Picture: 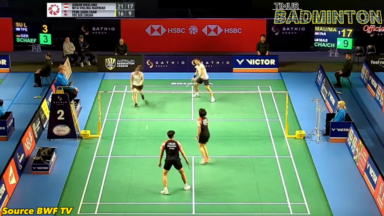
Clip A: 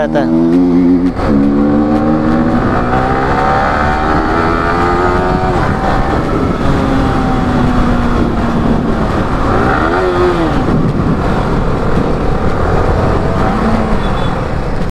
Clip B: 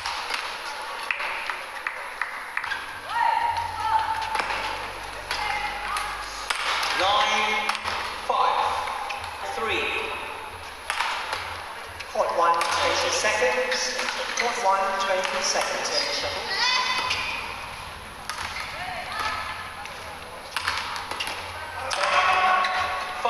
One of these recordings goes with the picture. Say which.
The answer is B